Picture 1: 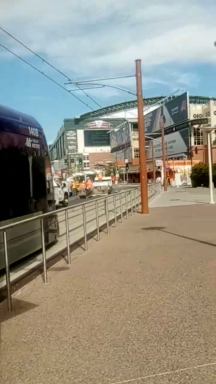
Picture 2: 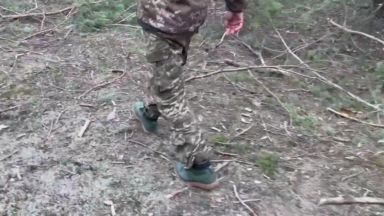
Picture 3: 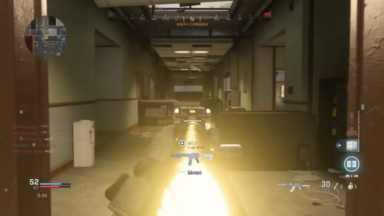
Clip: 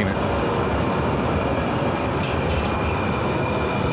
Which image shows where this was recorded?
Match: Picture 1